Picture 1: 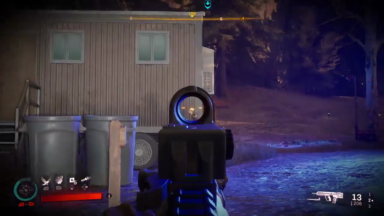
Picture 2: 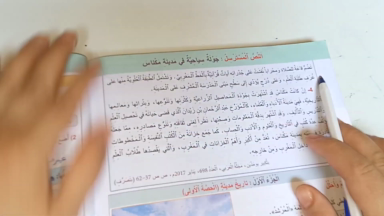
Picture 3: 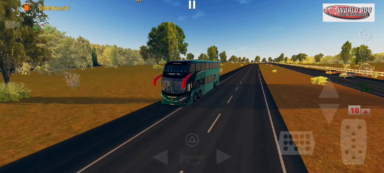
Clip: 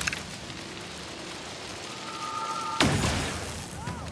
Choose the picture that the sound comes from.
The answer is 1